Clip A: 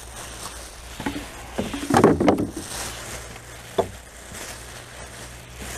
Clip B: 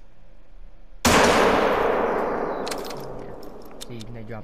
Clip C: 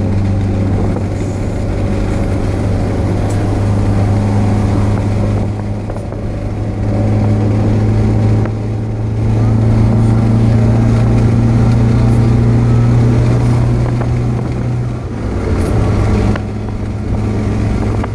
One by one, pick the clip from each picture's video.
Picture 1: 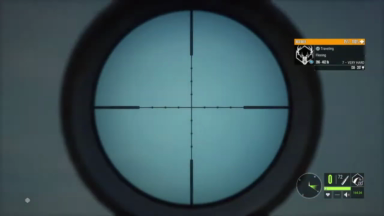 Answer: B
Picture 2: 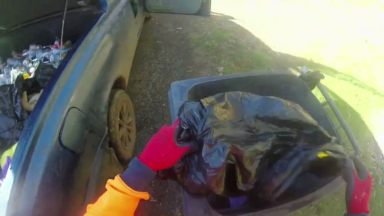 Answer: A